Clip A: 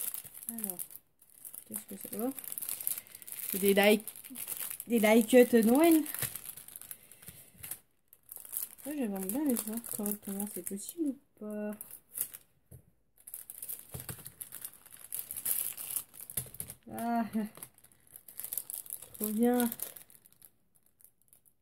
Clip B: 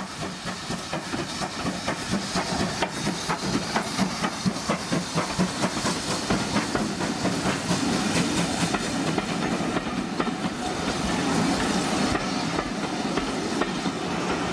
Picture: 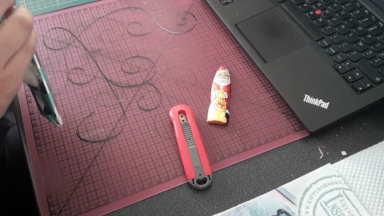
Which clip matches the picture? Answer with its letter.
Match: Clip A